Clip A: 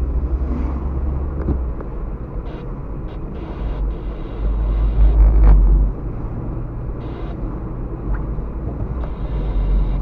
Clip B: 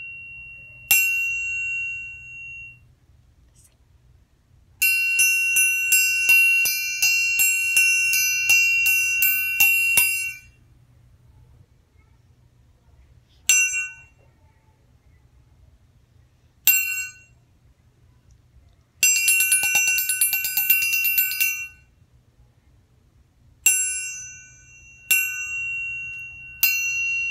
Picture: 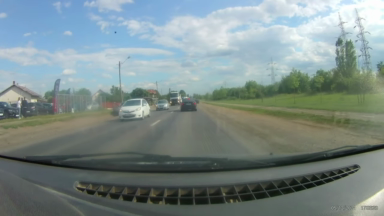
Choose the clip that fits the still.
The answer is A